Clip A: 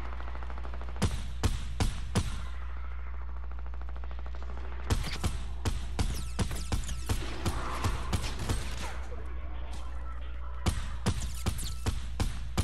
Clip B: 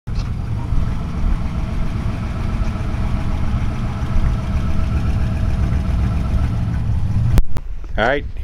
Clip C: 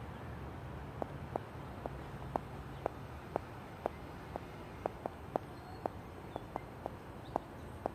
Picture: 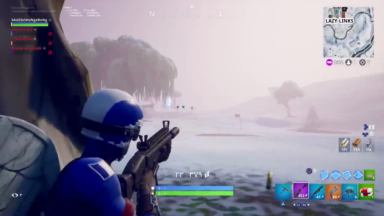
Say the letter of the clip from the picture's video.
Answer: A